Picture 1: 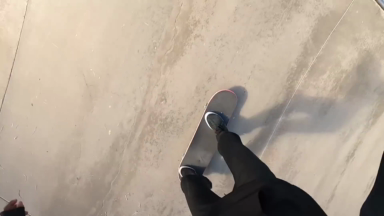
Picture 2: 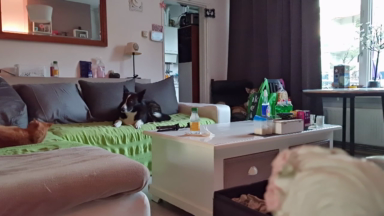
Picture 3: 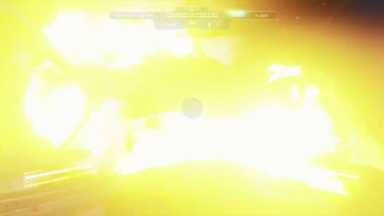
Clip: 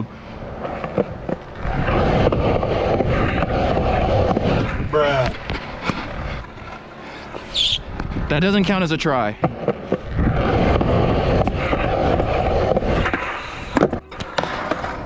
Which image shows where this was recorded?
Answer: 1